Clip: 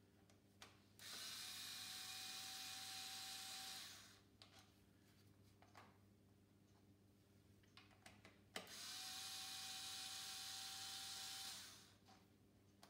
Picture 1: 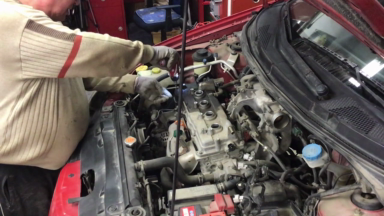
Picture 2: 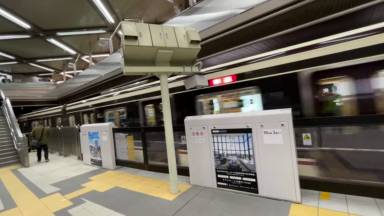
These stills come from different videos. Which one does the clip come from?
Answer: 1